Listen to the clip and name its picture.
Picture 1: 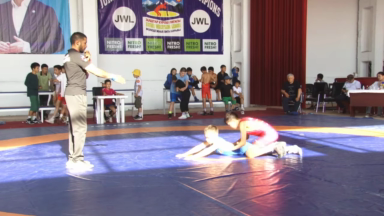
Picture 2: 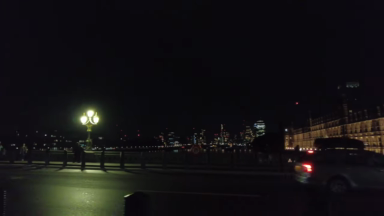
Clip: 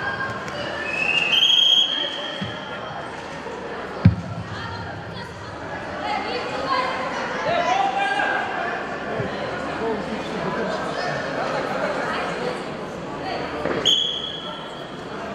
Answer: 1